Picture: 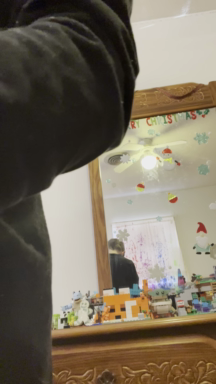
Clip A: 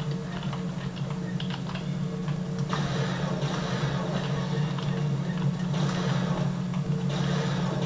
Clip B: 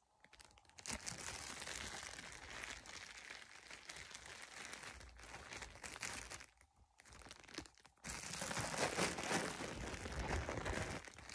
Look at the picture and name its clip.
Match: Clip B